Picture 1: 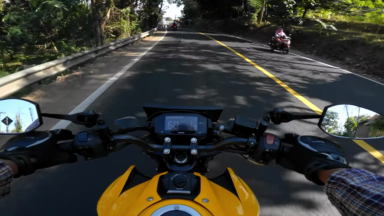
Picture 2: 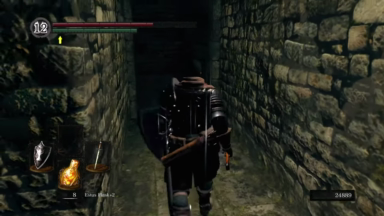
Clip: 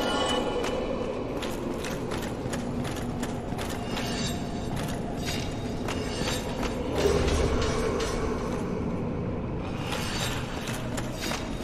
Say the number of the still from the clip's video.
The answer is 2